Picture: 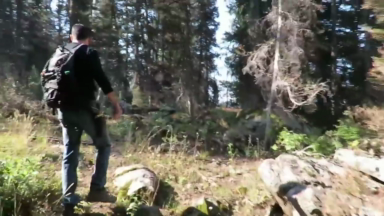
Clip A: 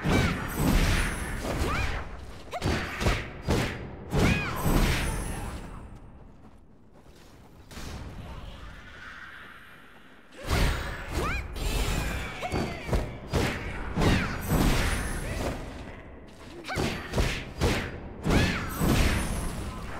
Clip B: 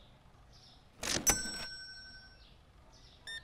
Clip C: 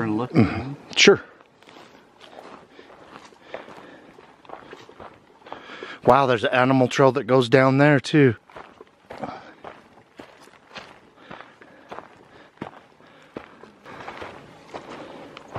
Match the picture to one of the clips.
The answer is C